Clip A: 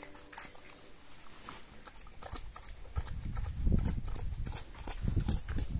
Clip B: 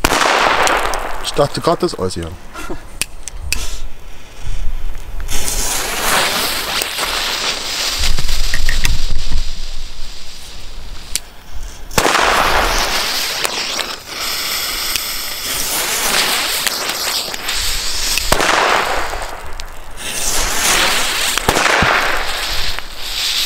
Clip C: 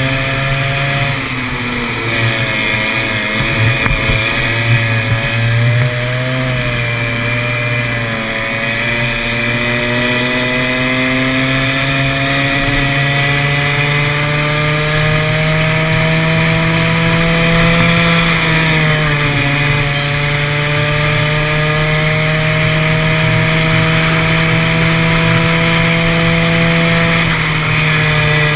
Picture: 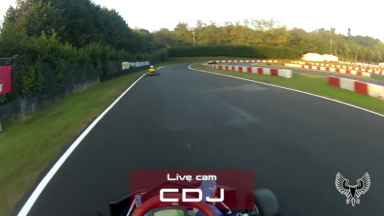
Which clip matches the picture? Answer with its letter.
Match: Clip C